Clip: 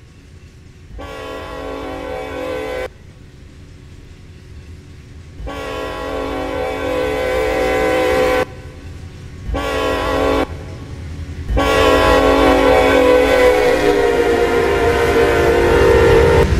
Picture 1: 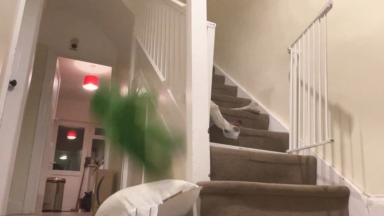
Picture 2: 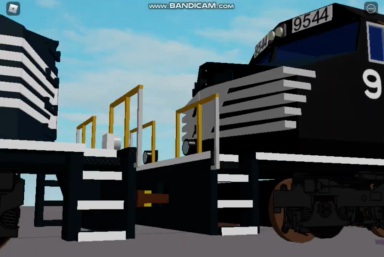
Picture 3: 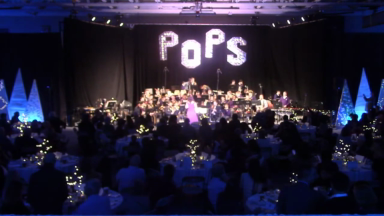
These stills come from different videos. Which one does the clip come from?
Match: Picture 2